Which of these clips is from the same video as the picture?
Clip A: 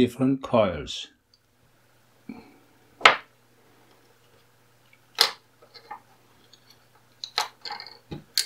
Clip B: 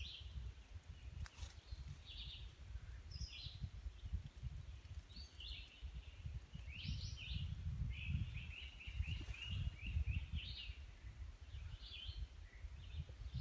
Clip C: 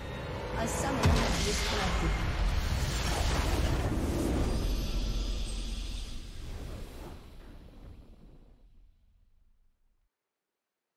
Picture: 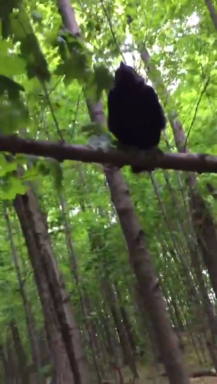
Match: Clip B